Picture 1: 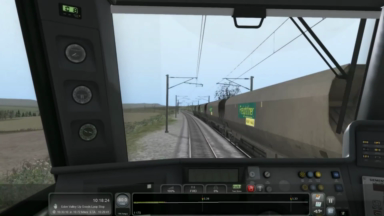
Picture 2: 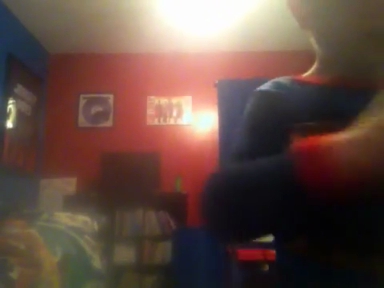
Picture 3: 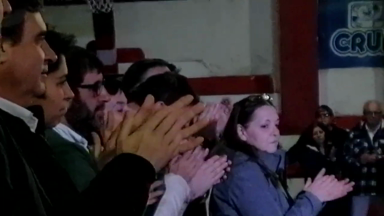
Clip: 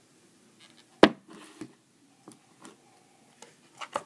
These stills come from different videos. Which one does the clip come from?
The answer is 2